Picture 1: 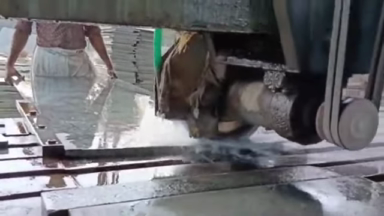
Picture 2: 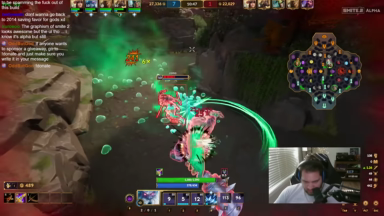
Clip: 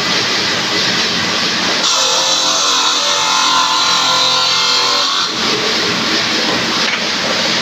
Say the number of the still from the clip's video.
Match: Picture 1